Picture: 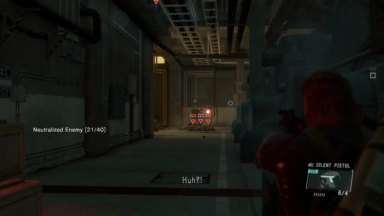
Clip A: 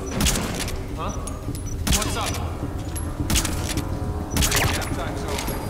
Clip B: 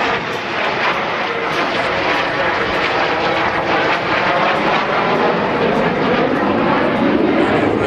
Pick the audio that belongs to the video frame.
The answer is A